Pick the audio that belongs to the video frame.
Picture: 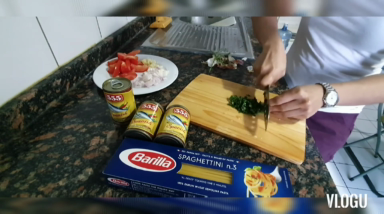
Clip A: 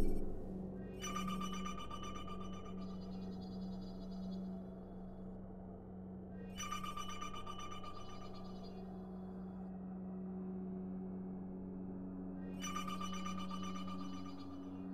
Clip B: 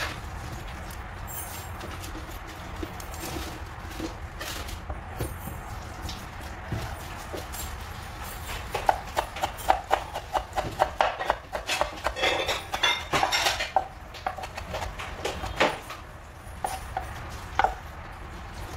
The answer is B